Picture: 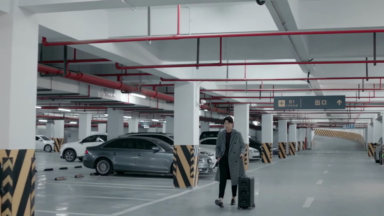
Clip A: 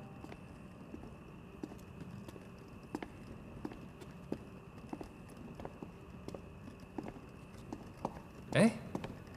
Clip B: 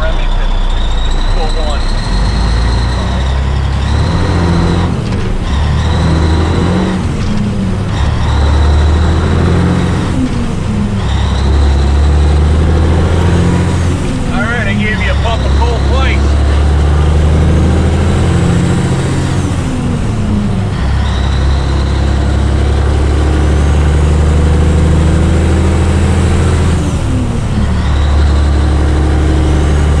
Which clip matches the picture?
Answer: A